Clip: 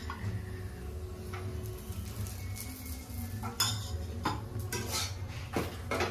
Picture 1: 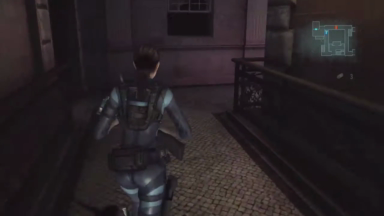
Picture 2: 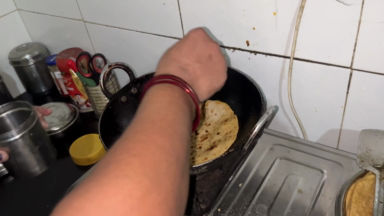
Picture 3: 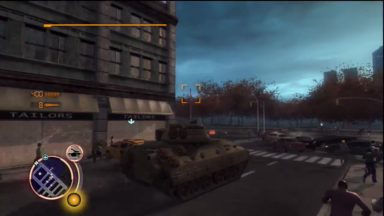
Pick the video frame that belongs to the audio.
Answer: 2